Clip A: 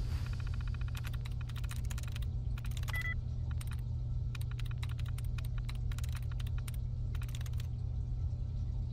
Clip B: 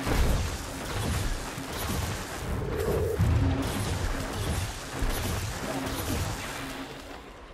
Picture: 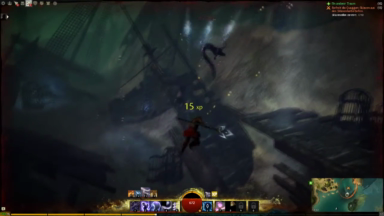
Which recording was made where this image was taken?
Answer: B